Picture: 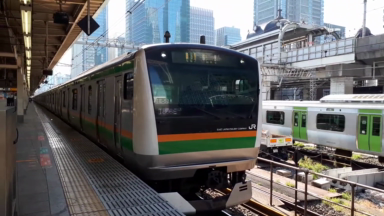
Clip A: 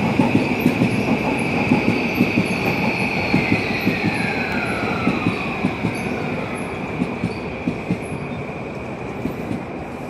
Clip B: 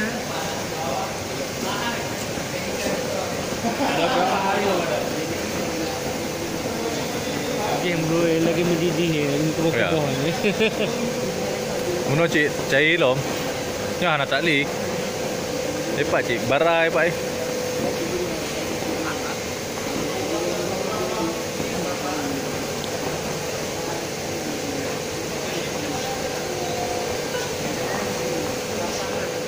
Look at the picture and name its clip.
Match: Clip A